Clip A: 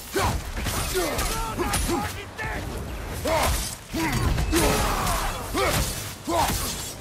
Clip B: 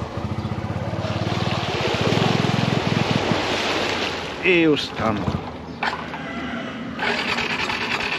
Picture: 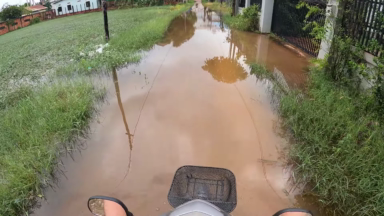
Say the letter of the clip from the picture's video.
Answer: B